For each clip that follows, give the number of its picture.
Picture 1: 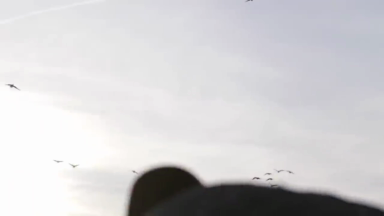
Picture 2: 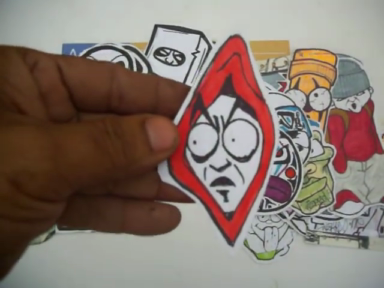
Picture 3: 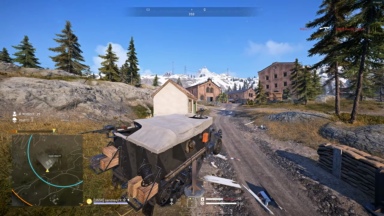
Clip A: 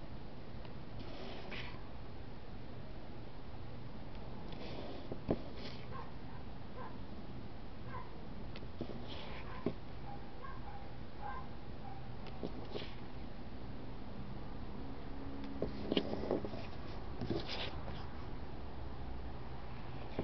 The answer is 2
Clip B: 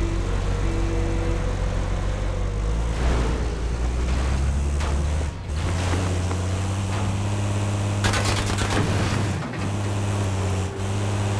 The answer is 3